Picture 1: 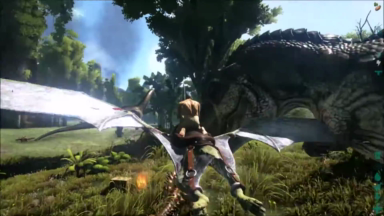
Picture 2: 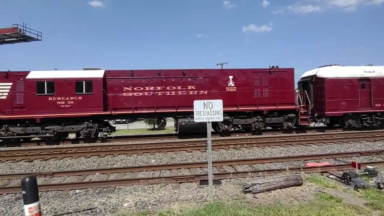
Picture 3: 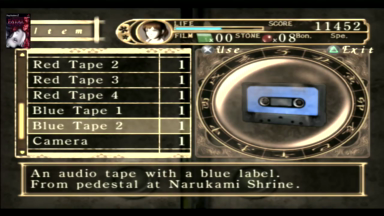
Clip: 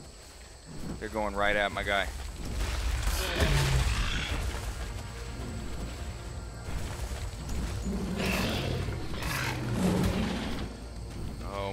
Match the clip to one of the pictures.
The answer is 1